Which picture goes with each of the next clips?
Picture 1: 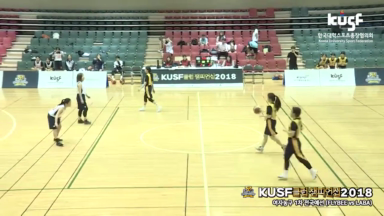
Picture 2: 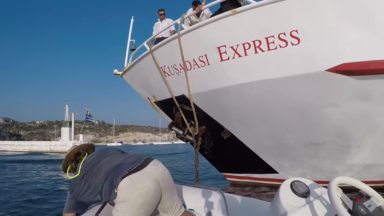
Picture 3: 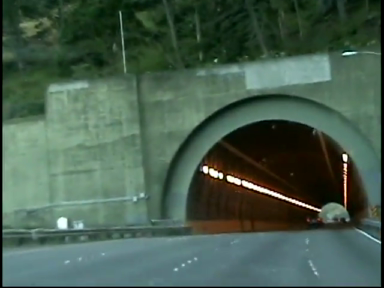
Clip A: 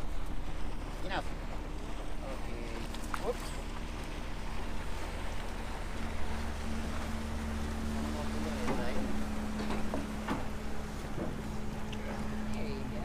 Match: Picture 2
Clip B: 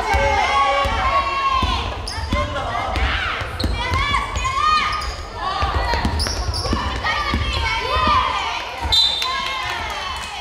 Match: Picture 1